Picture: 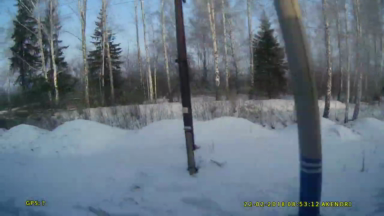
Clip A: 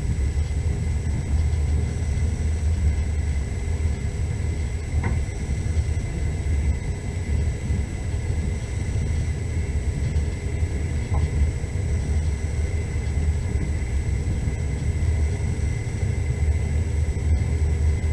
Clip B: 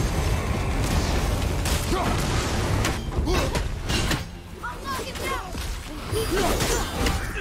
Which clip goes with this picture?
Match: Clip A